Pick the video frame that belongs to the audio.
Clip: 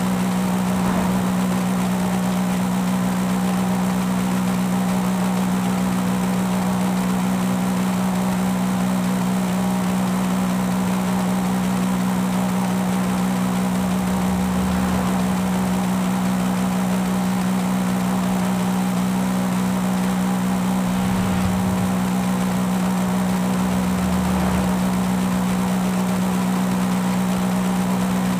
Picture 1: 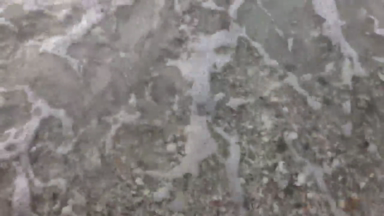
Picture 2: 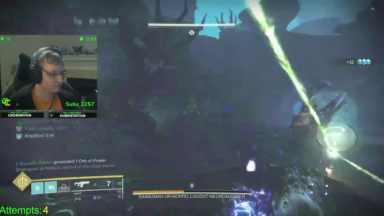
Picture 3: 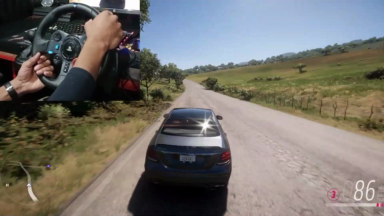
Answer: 3